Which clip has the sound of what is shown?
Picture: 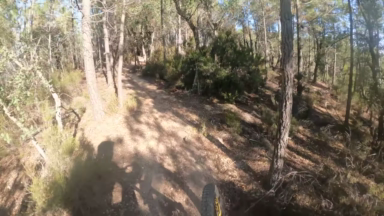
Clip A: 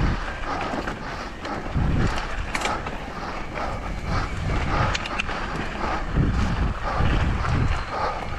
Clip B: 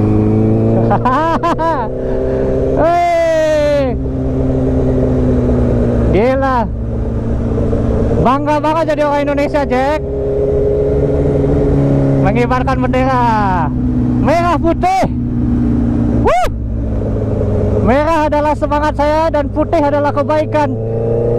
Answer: A